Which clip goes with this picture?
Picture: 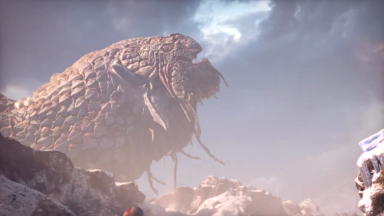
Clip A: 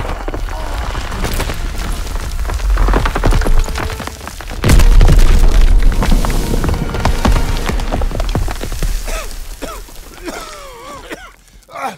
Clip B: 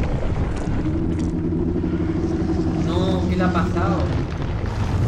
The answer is B